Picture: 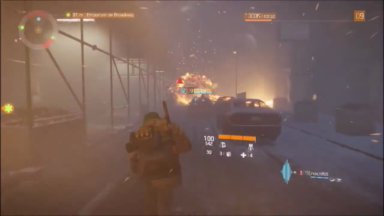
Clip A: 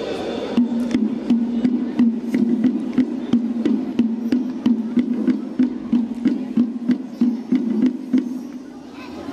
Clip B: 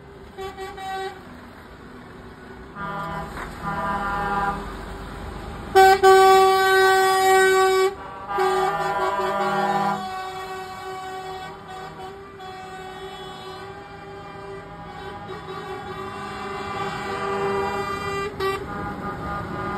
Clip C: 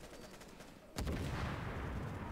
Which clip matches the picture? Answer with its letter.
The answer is C